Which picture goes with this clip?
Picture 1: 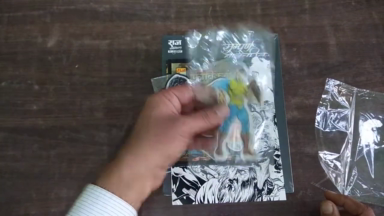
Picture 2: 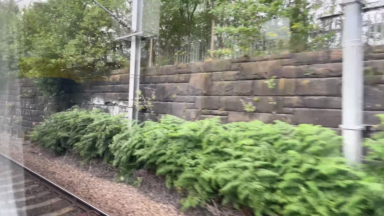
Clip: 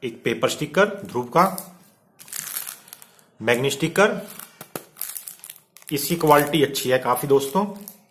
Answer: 1